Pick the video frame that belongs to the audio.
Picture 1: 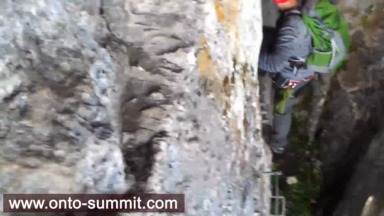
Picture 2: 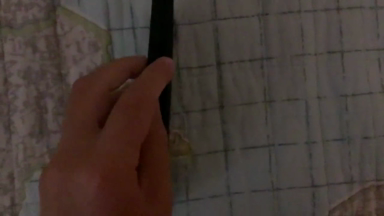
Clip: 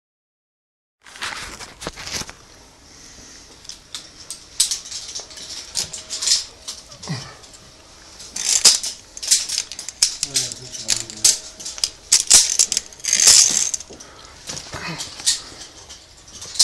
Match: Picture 1